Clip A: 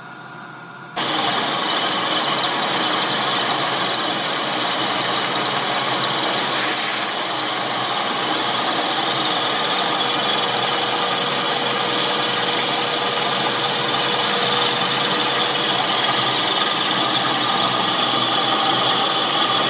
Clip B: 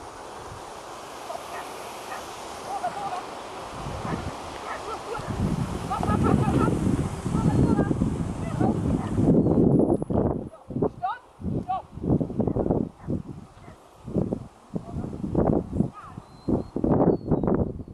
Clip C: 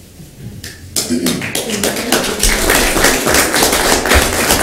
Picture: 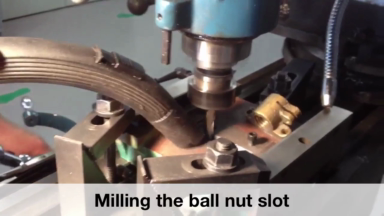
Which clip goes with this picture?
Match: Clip A